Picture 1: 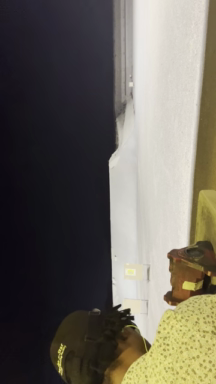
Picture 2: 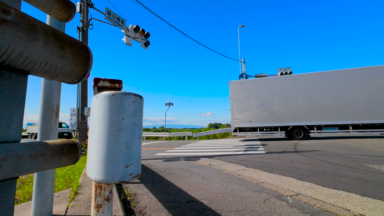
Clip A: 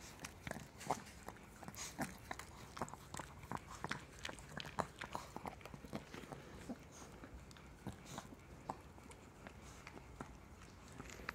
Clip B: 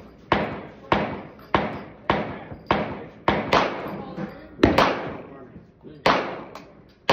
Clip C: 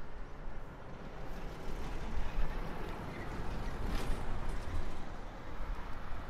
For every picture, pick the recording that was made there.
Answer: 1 B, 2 C